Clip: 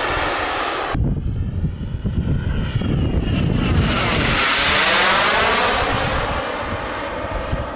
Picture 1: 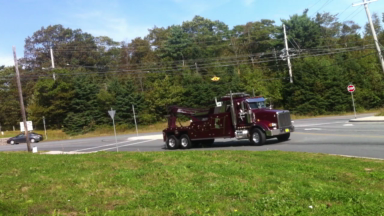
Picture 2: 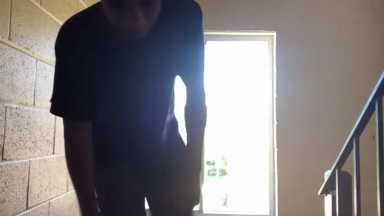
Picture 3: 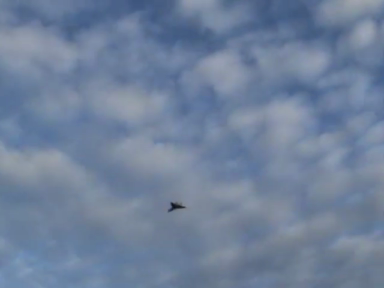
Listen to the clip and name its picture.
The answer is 3